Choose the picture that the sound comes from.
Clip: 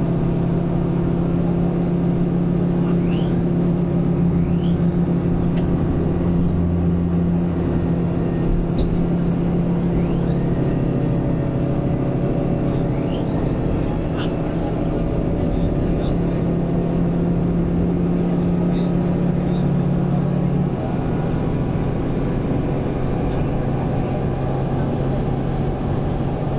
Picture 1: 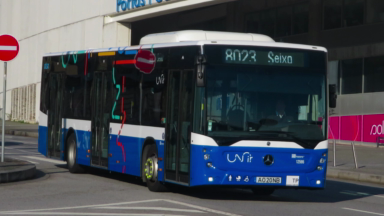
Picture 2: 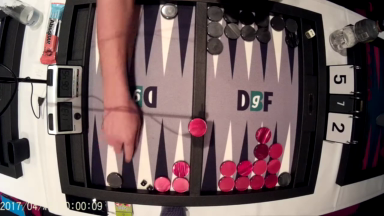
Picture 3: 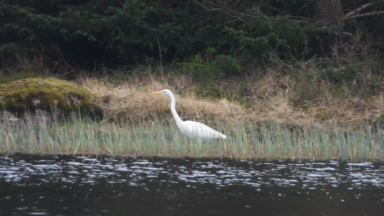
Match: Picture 1